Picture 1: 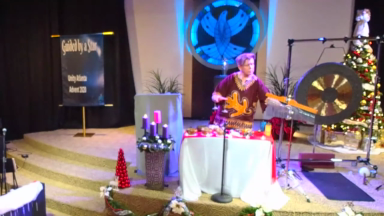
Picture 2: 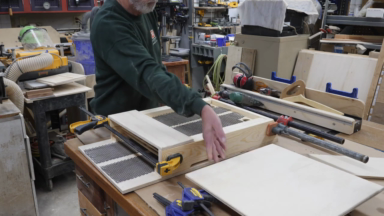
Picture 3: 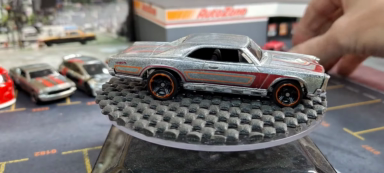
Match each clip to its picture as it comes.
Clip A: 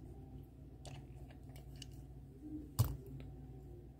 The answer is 3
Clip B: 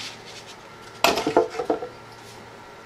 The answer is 2